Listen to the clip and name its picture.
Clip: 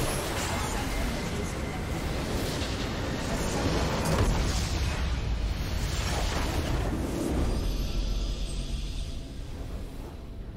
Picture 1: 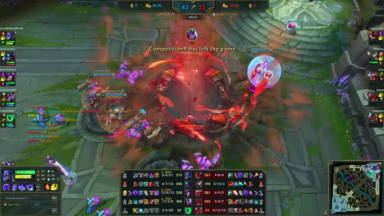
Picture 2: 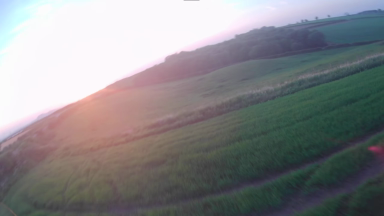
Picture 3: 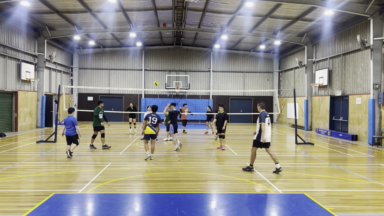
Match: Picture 1